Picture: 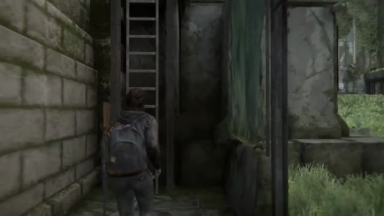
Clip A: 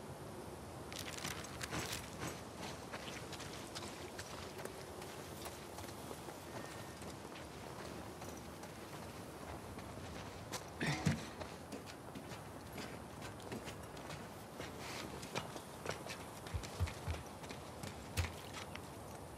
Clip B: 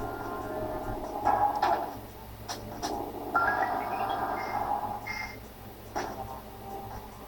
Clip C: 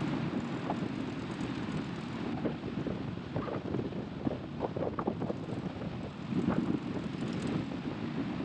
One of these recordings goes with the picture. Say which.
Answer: A